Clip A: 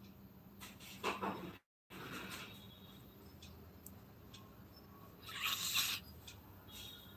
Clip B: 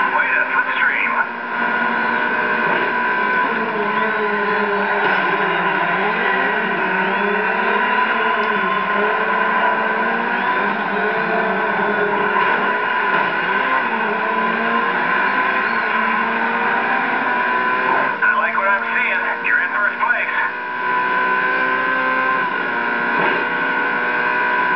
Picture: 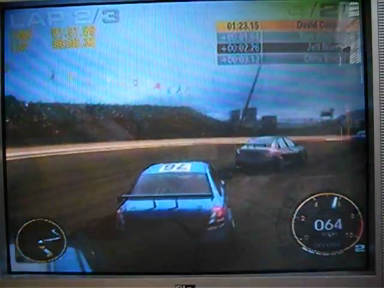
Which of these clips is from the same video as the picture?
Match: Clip B